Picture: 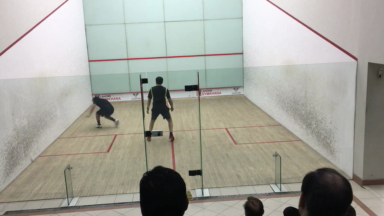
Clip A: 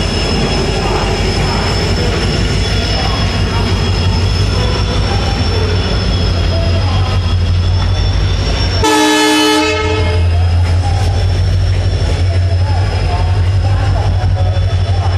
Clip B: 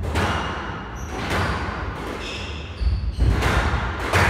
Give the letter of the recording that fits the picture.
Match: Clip B